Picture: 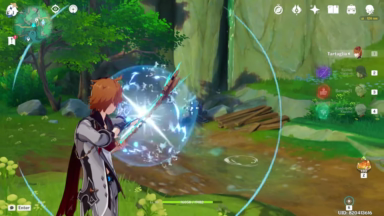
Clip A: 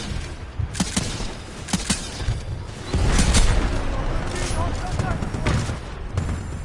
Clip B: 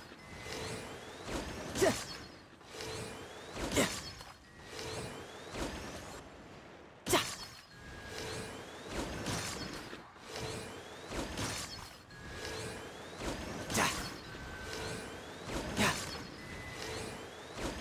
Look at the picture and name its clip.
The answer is B